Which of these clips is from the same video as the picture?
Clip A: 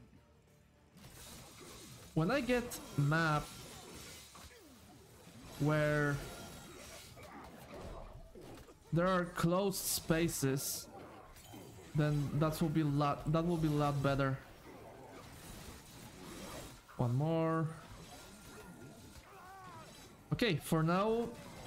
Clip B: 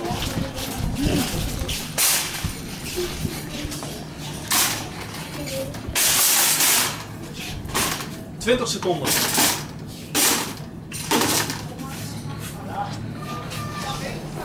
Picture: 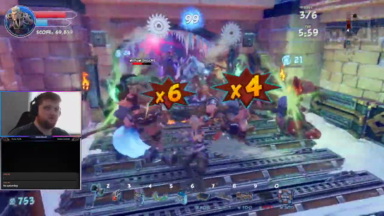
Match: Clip A